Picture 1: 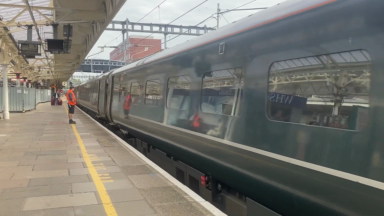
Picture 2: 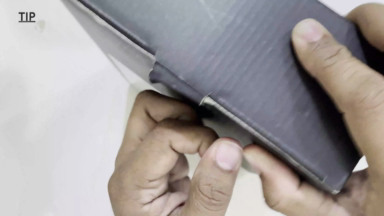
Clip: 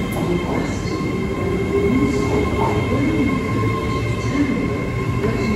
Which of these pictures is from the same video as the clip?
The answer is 1